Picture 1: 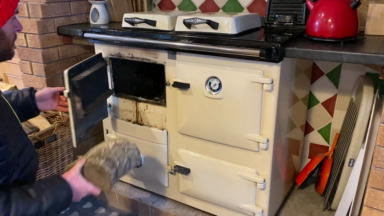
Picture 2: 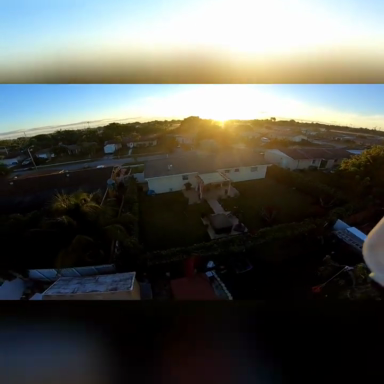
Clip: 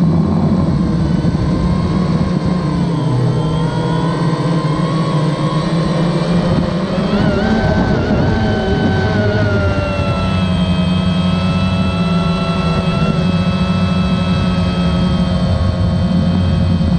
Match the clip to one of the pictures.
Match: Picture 2